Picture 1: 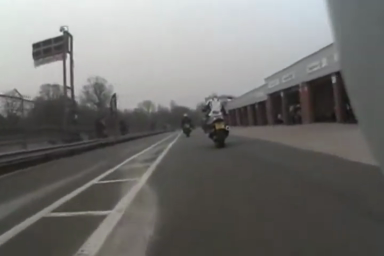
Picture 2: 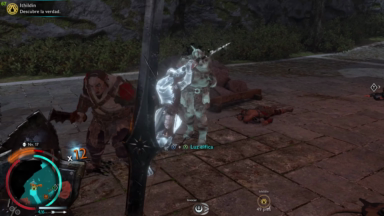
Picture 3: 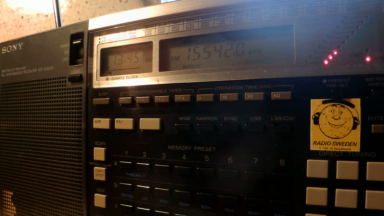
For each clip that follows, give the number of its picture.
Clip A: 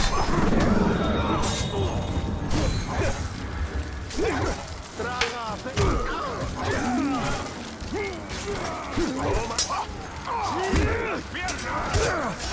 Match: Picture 2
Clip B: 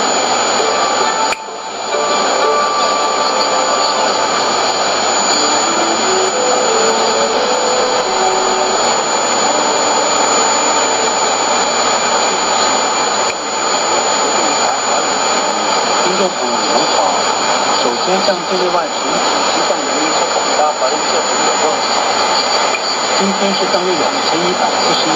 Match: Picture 3